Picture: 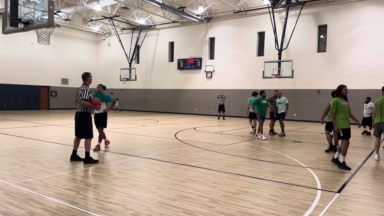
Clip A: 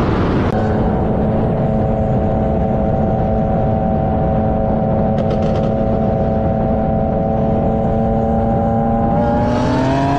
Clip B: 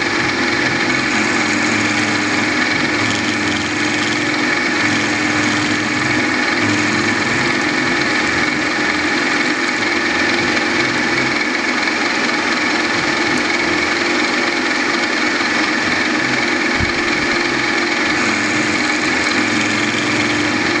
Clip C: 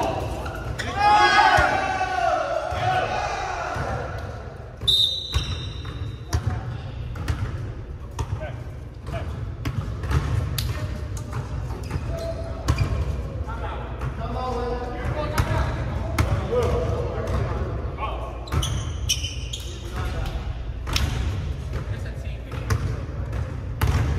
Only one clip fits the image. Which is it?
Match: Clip C